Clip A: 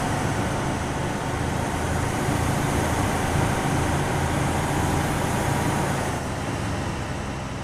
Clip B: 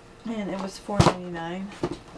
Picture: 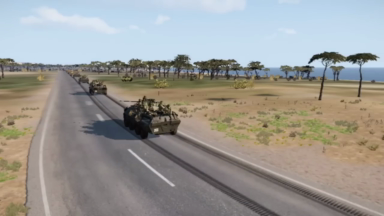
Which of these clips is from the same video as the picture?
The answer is A